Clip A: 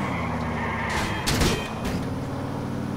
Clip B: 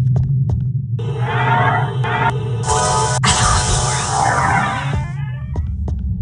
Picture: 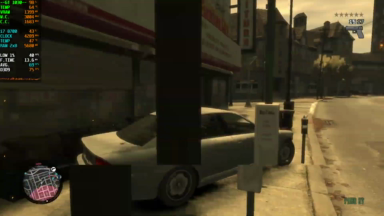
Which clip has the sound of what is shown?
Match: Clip A